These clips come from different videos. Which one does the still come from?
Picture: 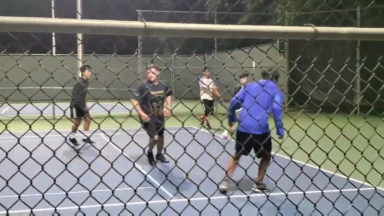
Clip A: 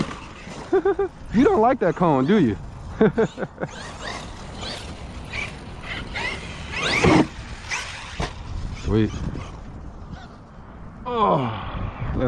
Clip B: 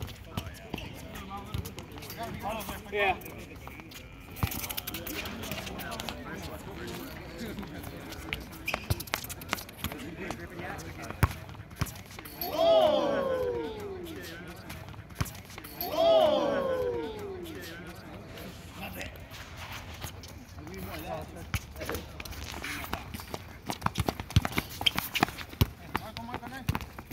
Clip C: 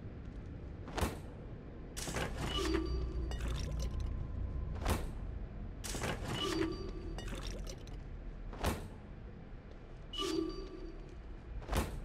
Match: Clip B